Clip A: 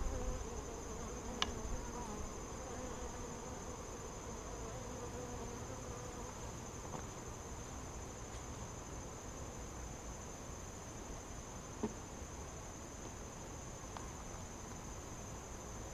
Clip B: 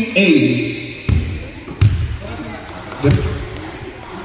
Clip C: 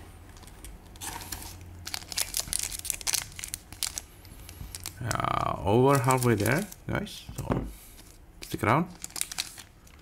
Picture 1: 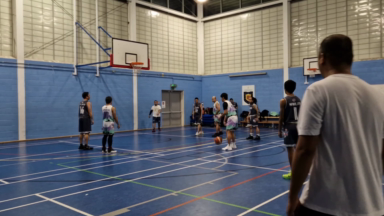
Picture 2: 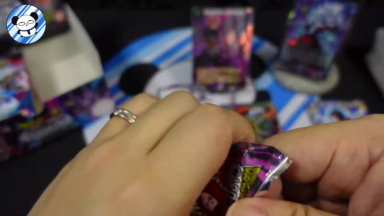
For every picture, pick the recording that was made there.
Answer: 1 B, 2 C